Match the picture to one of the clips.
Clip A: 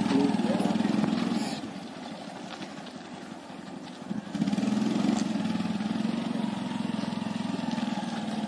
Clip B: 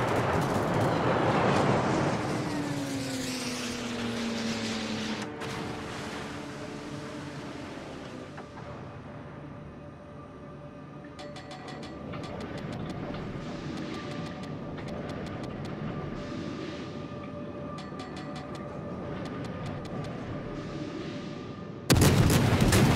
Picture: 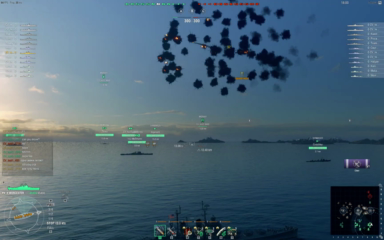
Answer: B